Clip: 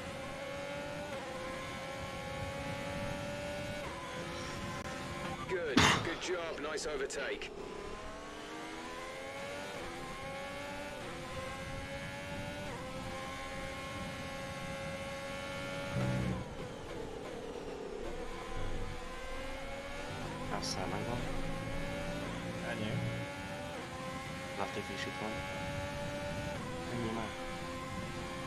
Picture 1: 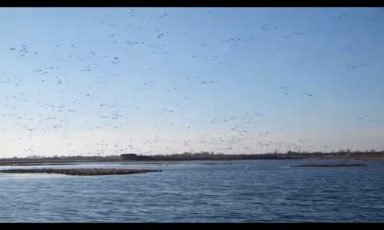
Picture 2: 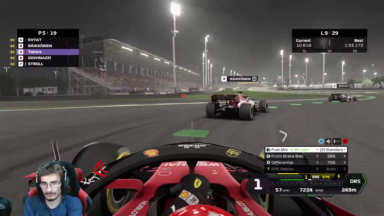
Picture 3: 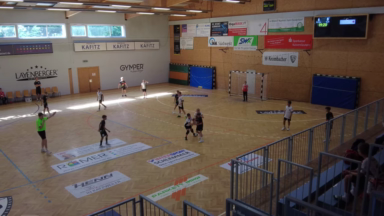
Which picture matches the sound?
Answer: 2